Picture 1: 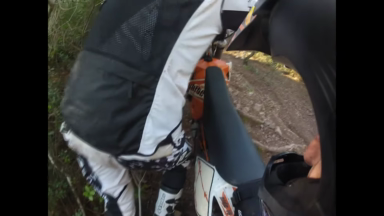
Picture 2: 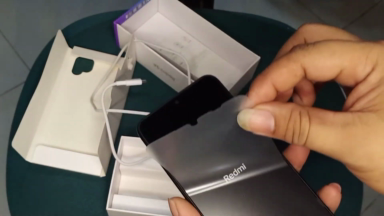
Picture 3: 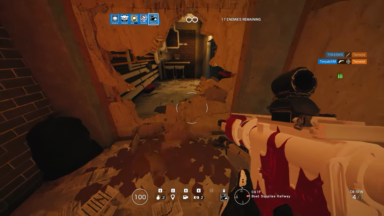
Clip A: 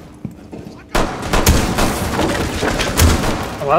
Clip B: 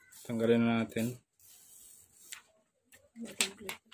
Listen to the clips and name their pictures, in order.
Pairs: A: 3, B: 2